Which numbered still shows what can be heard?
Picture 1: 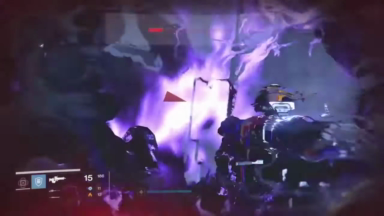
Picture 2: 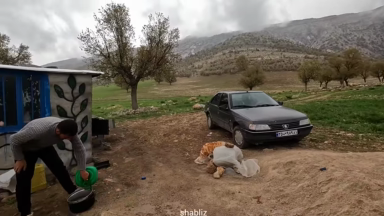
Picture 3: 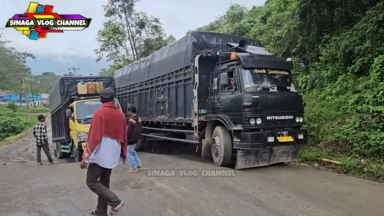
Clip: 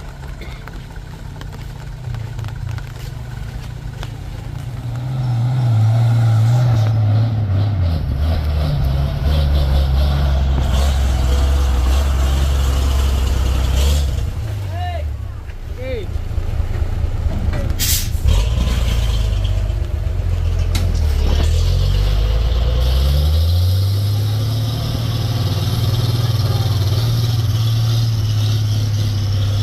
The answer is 3